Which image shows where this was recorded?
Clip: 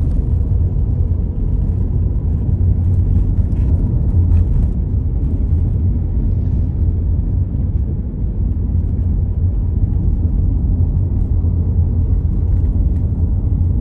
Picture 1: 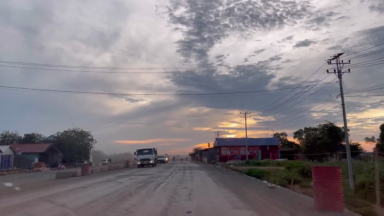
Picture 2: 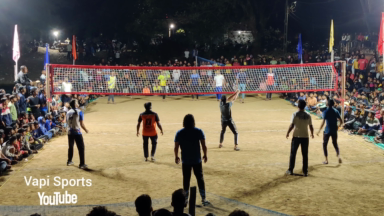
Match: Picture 1